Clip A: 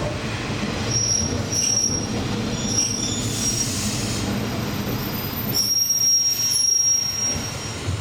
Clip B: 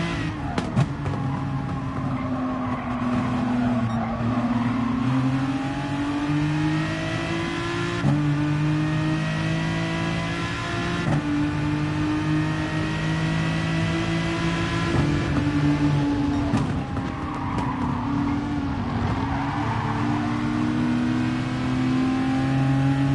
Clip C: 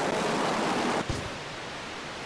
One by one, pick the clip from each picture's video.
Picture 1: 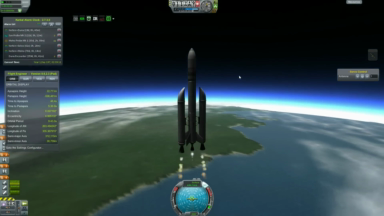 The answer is C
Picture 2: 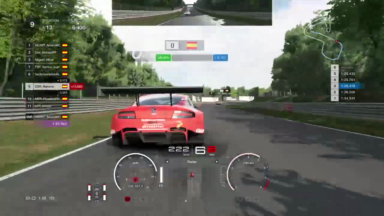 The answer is B